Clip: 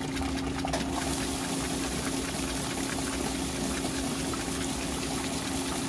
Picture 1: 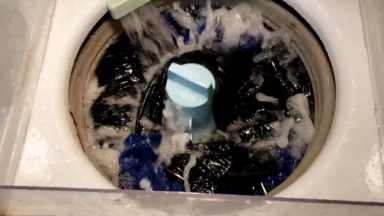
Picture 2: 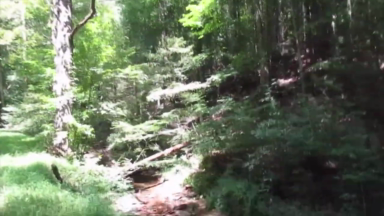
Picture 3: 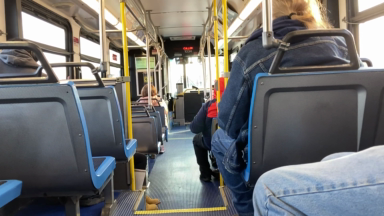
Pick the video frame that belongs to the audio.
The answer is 1